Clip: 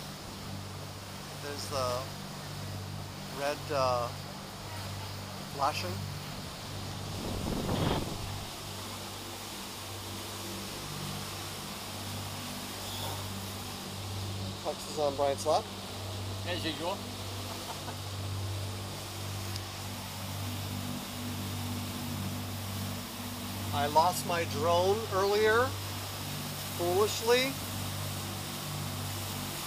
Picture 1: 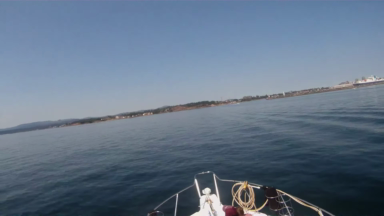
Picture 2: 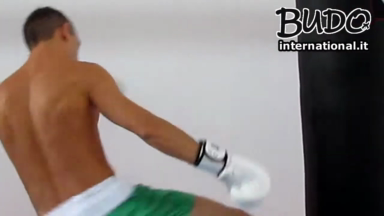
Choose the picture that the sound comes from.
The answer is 1